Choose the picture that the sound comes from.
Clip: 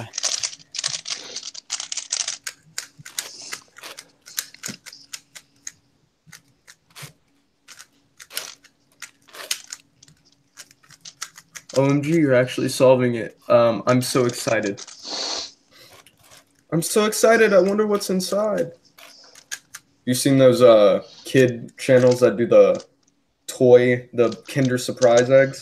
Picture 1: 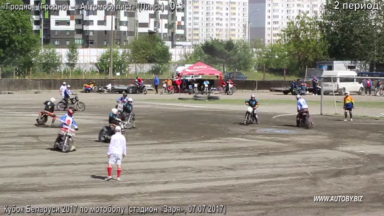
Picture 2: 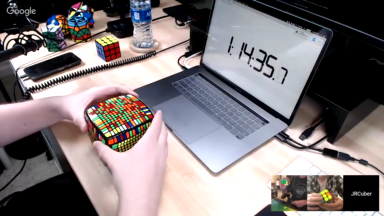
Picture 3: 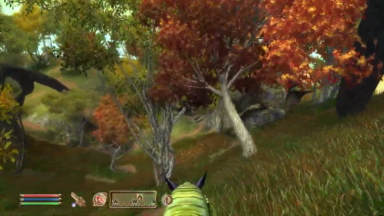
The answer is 2